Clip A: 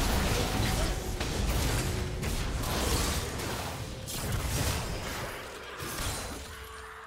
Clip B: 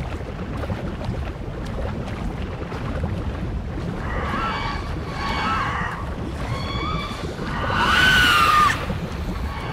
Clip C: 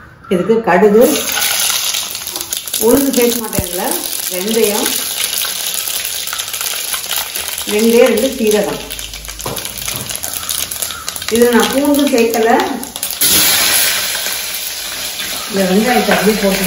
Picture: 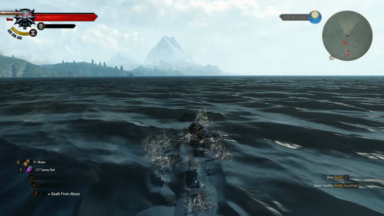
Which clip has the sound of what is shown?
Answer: B